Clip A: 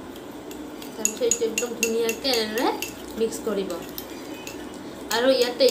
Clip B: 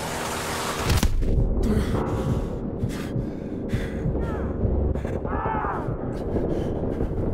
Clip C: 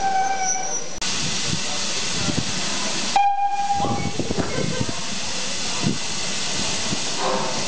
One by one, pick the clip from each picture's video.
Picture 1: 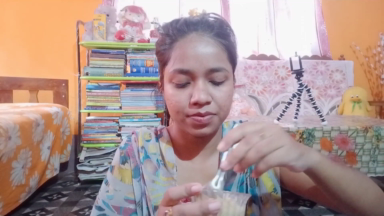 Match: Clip A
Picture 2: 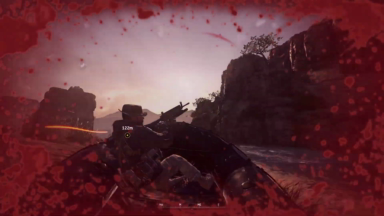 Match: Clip B